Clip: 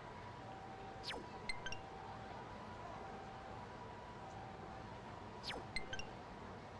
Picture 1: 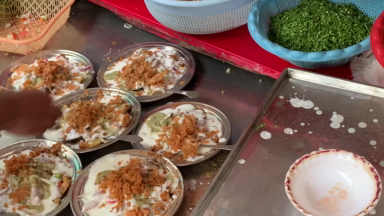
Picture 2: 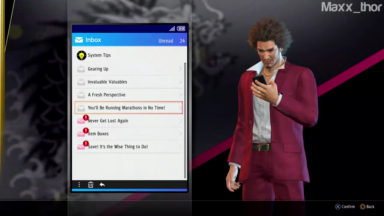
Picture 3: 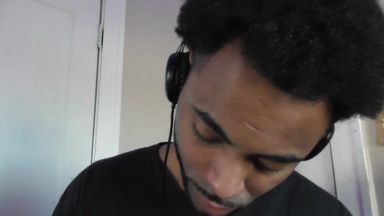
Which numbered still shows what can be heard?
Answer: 2